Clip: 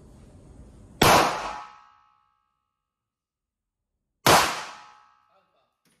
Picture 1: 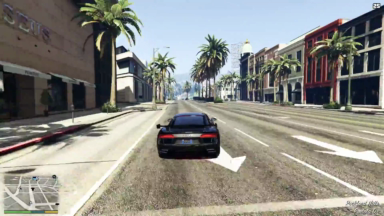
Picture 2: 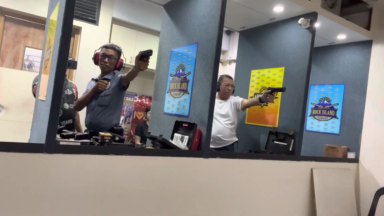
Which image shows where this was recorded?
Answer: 2